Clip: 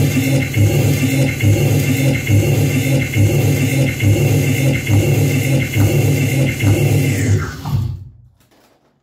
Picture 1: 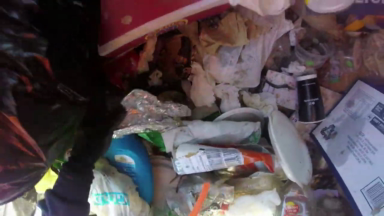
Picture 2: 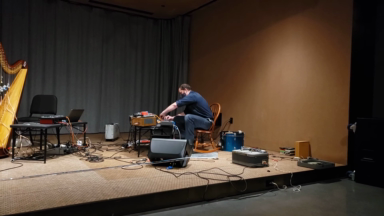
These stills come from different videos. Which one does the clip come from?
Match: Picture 2